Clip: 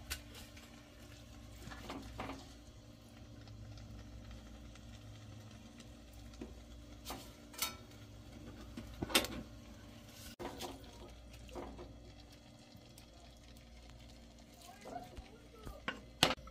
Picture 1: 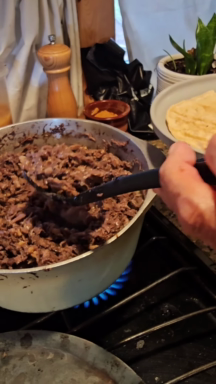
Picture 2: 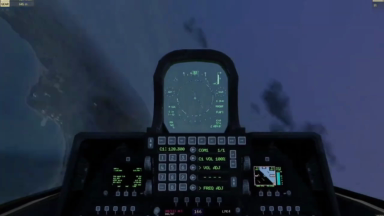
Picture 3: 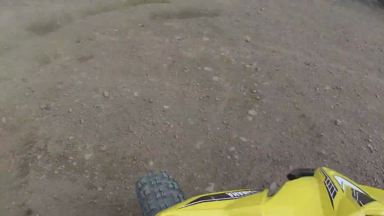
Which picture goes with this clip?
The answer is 1